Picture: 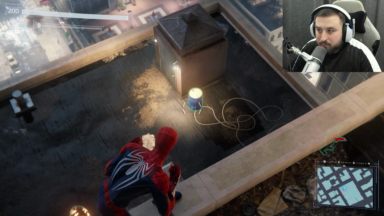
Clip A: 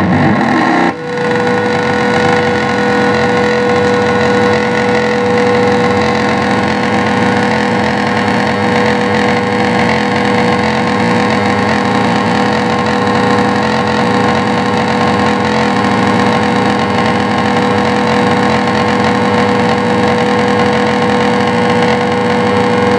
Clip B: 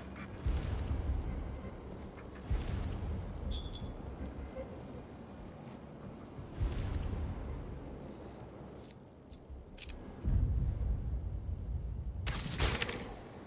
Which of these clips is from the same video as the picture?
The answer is B